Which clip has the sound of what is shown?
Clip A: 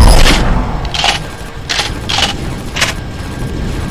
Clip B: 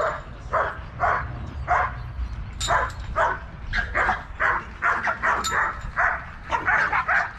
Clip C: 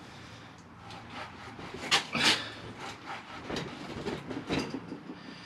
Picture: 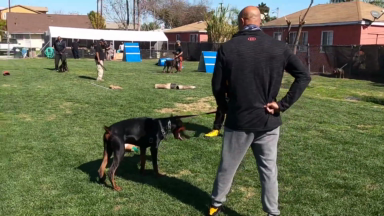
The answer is B